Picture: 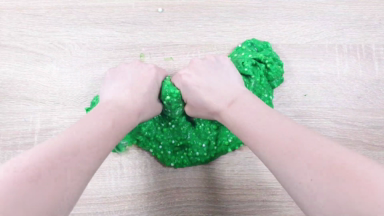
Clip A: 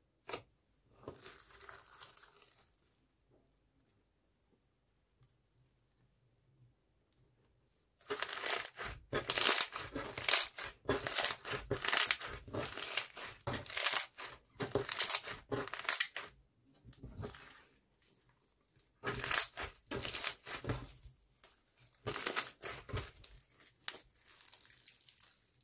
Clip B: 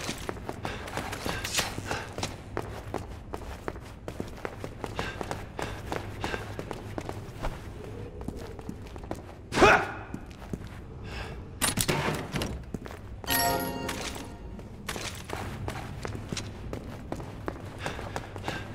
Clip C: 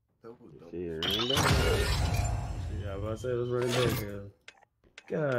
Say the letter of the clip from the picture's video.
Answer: A